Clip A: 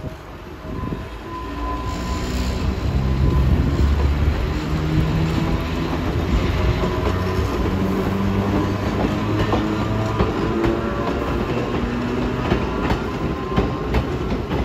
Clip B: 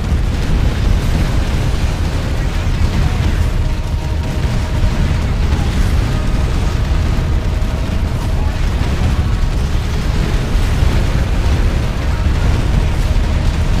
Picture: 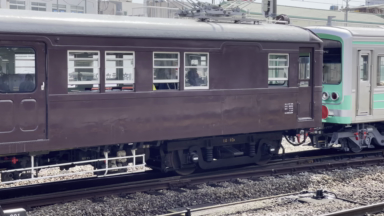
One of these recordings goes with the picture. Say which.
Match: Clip A